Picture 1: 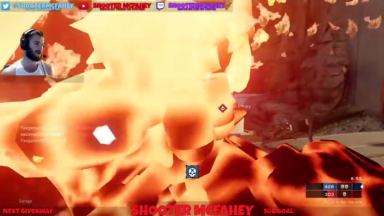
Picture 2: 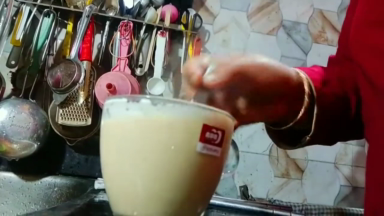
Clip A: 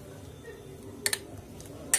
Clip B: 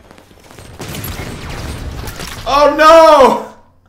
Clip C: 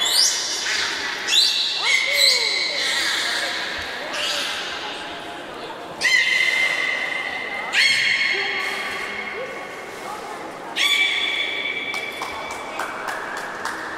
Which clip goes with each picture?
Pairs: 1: B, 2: A